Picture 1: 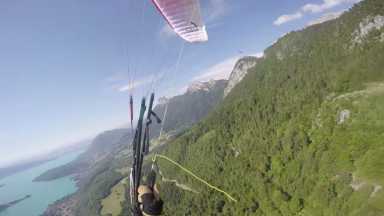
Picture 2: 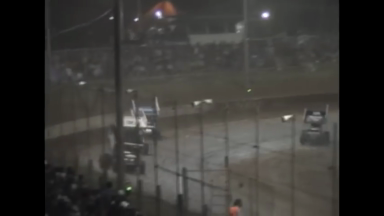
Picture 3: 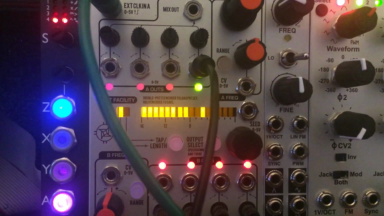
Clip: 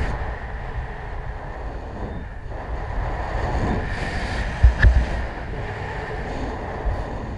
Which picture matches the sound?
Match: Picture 1